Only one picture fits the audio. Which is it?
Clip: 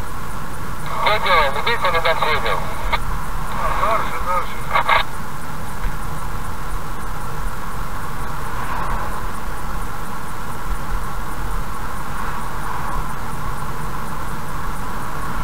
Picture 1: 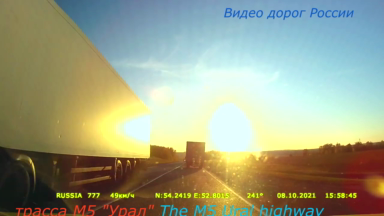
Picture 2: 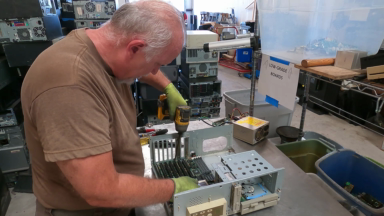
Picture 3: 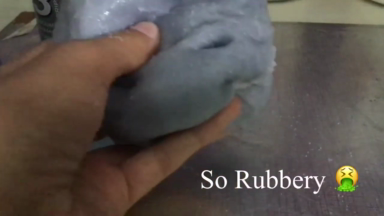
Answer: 1